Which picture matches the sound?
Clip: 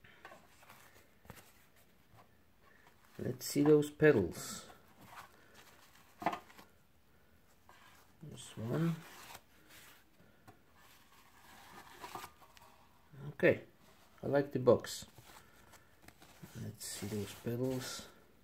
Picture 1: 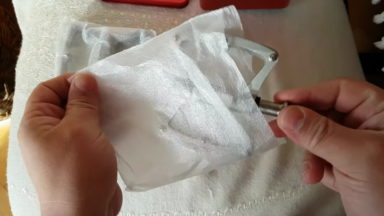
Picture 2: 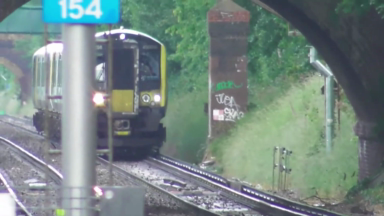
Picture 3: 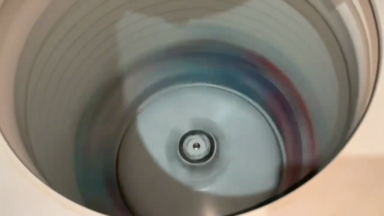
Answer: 1